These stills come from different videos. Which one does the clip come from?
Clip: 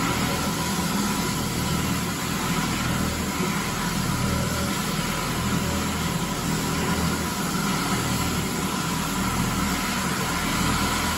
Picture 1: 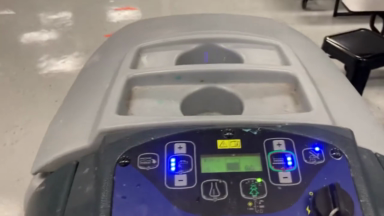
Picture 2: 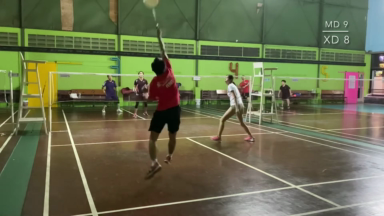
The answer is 1